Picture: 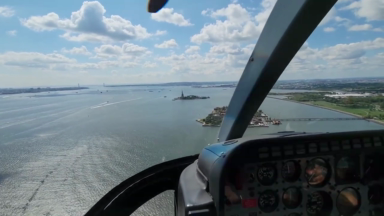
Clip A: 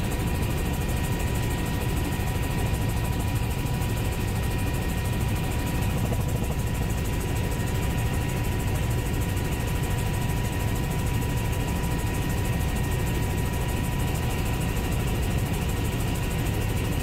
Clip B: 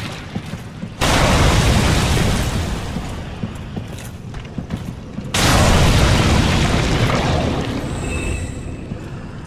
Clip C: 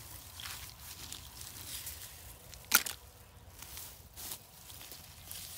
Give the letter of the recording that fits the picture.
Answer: A